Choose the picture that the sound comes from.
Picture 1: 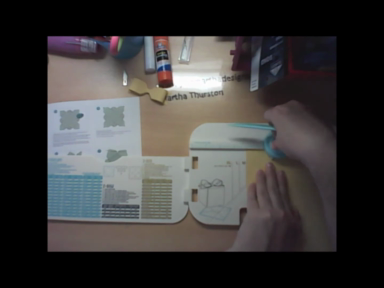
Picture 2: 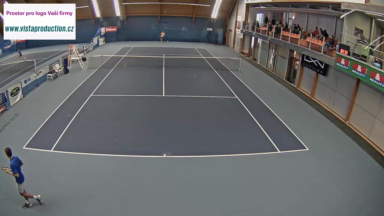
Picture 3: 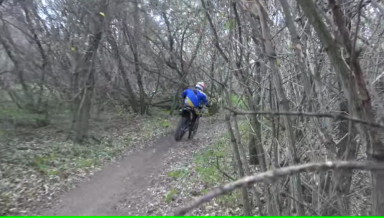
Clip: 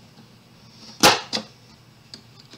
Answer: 1